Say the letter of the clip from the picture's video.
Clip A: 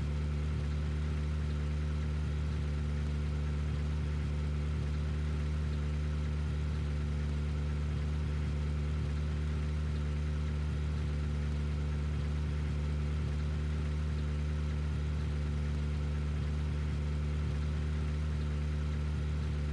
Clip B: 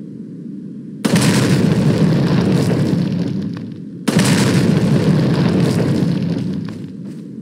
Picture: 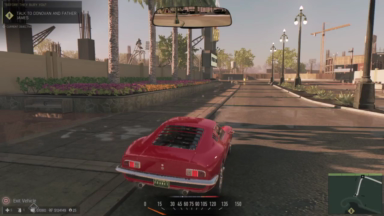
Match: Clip A